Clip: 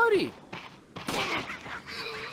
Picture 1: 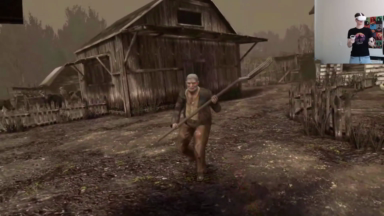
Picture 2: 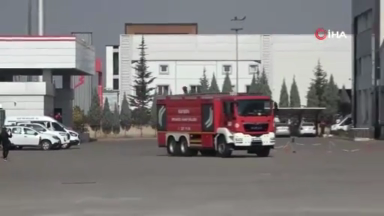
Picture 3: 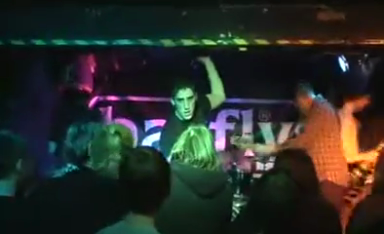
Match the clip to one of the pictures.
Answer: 1